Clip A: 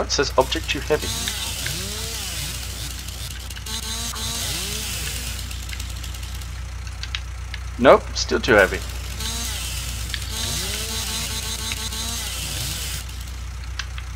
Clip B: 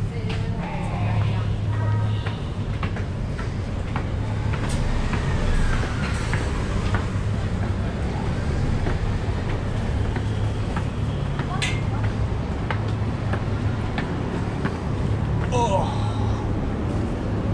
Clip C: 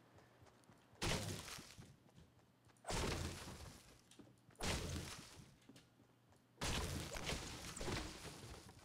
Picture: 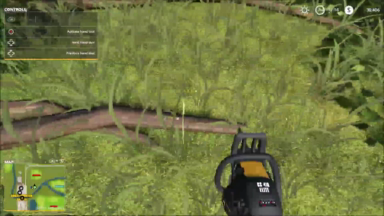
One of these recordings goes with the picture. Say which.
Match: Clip A